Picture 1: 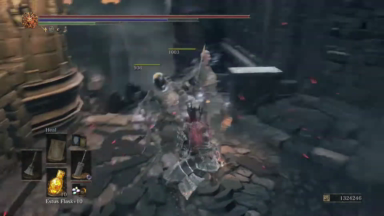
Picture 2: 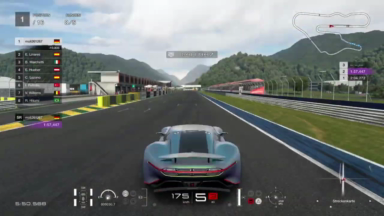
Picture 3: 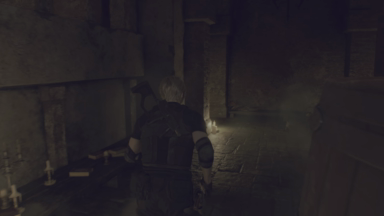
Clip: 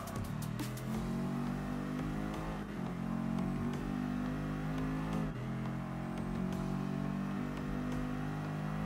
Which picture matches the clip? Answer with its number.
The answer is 2